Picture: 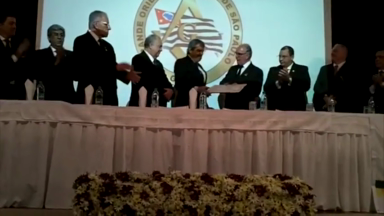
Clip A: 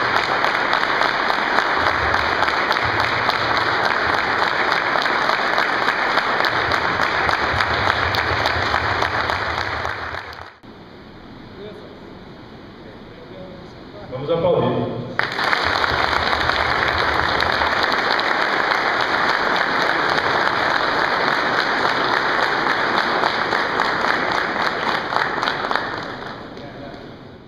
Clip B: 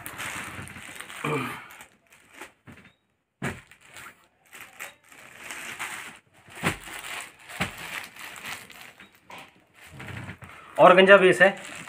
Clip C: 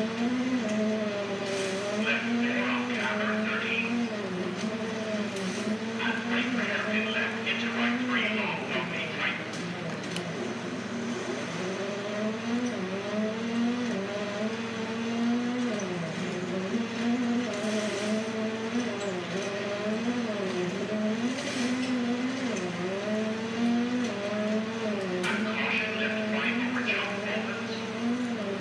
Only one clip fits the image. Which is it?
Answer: A